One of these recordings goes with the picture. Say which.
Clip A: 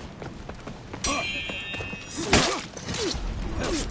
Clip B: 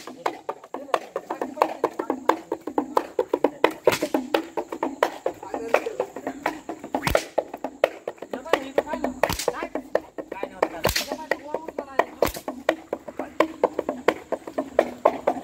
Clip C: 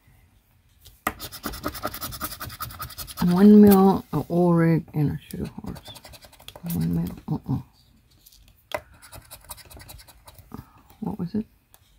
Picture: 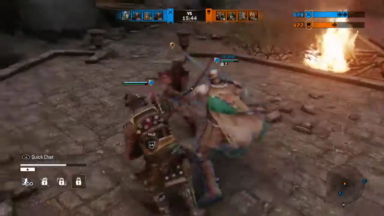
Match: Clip A